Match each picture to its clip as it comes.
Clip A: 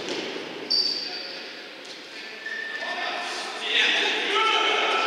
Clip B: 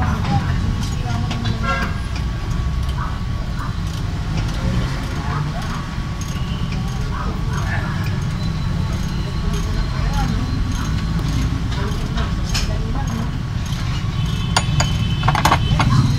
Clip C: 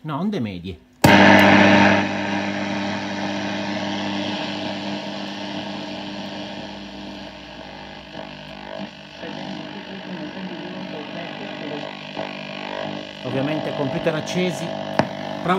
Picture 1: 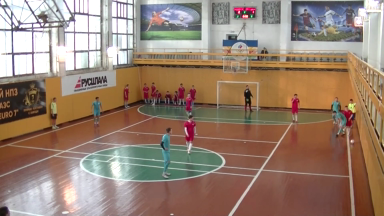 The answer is A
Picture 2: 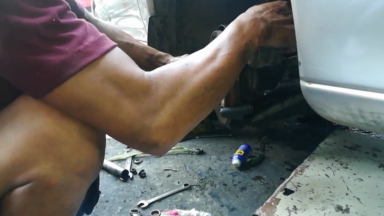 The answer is B